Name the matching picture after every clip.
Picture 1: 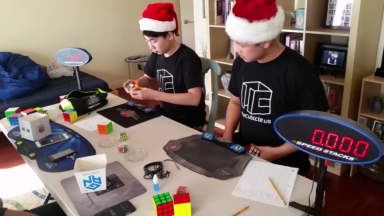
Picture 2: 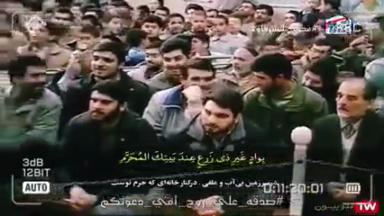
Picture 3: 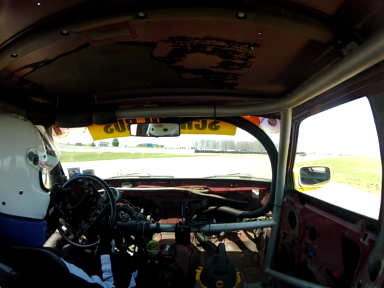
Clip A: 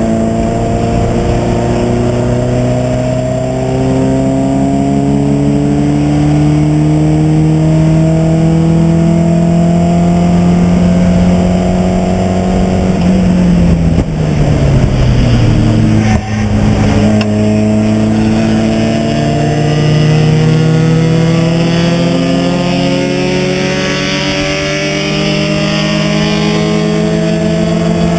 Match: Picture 3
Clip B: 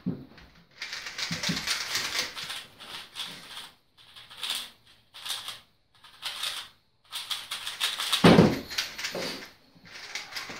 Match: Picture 1